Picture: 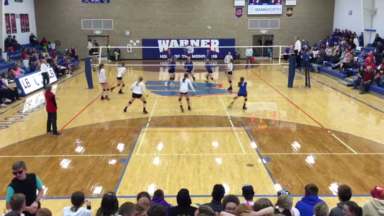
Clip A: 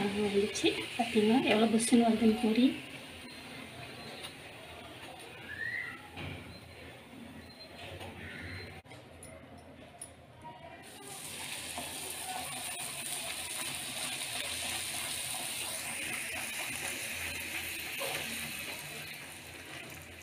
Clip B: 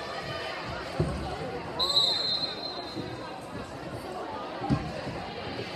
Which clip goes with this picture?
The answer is B